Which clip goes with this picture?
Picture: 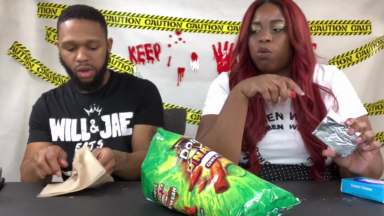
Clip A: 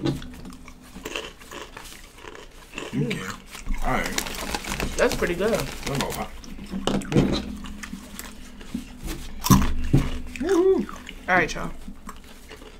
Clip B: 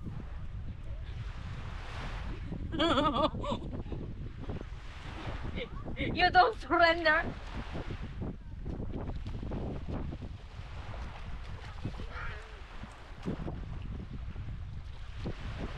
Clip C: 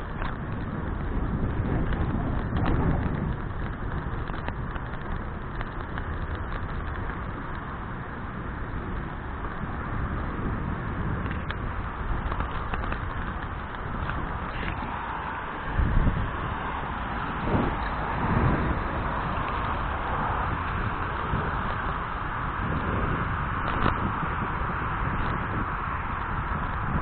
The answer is A